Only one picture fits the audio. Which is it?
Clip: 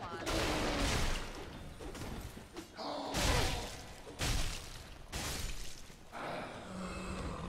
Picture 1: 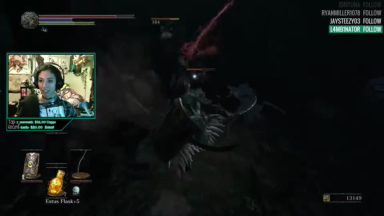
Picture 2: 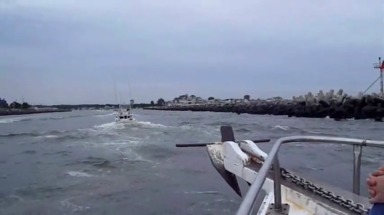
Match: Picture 1